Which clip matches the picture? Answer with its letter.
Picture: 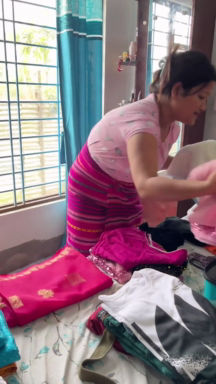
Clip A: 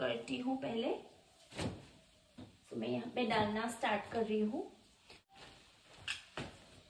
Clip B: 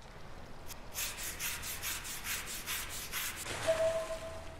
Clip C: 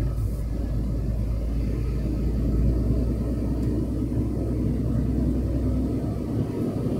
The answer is A